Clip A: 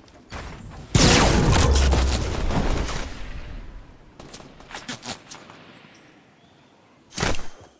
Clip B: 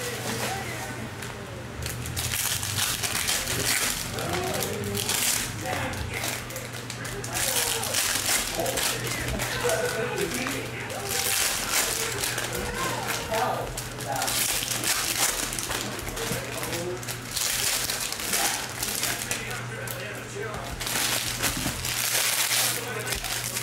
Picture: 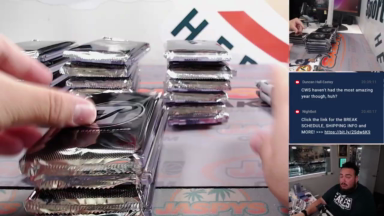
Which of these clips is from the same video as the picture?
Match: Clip B